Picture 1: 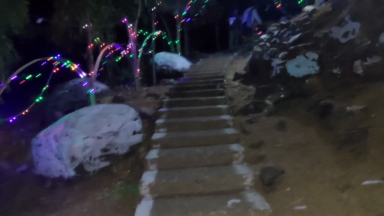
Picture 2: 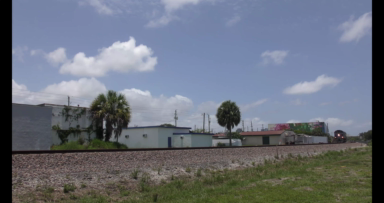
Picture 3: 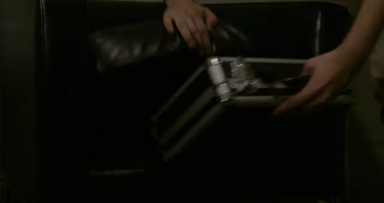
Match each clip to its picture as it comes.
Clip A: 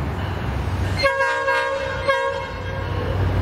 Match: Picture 2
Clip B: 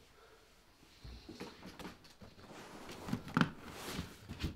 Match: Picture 3